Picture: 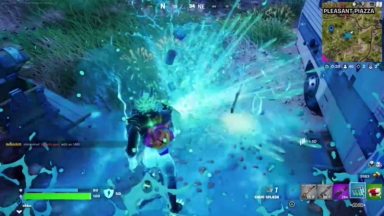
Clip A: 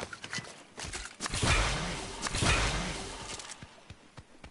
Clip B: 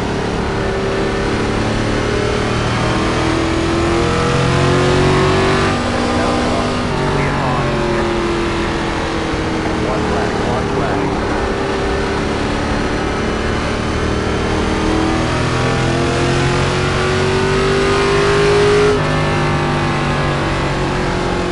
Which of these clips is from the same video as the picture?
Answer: A